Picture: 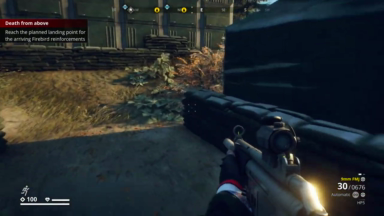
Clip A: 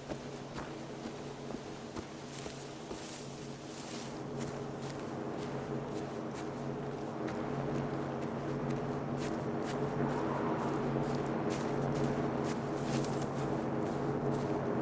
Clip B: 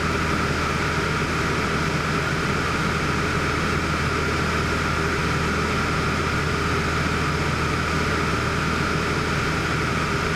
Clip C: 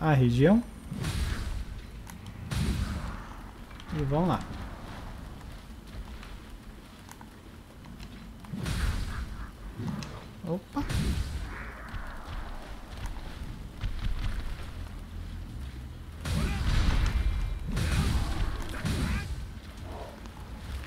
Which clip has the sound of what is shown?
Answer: A